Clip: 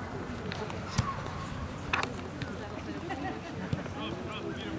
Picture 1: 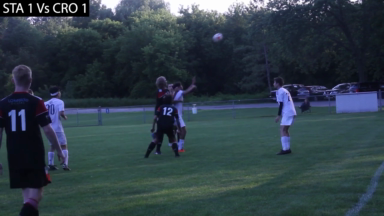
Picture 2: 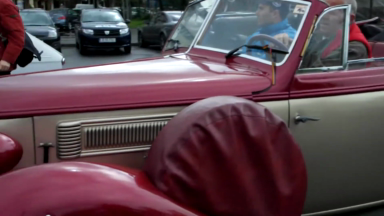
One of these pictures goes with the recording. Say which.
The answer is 1